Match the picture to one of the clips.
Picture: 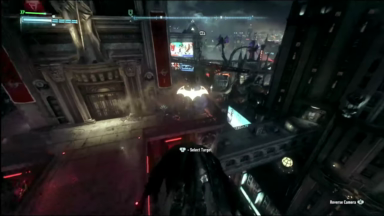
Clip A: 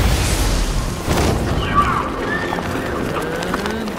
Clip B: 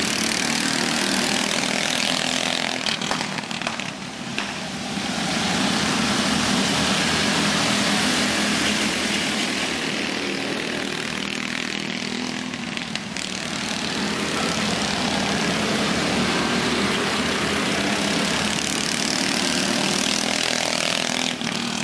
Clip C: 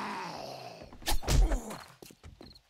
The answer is A